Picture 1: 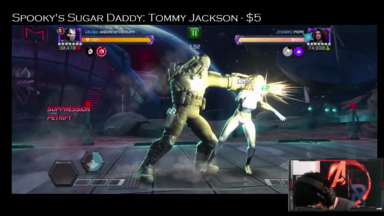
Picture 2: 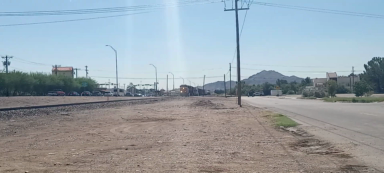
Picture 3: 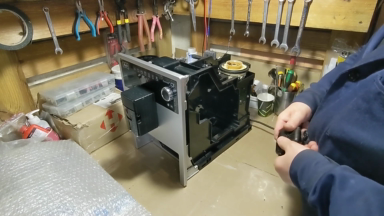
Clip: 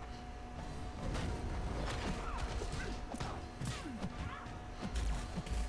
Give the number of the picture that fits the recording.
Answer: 1